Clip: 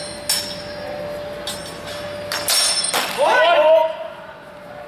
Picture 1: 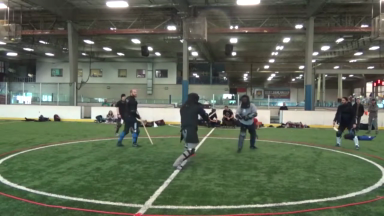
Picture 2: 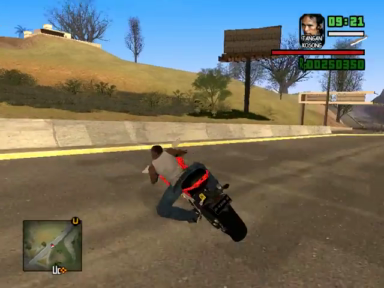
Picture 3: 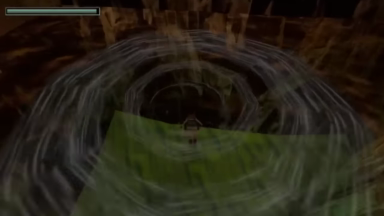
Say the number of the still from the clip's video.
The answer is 1